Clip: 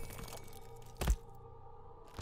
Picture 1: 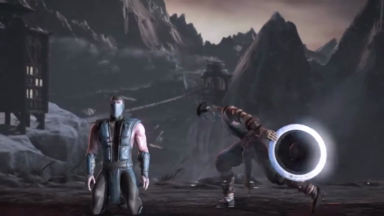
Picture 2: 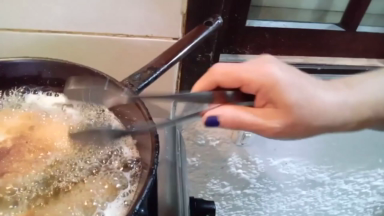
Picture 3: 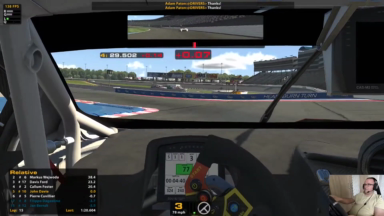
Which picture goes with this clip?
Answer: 1